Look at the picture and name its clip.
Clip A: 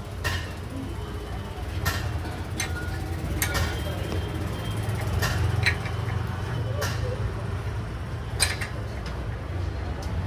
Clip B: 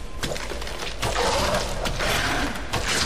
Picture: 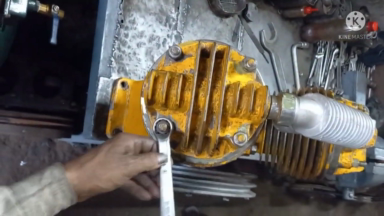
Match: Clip A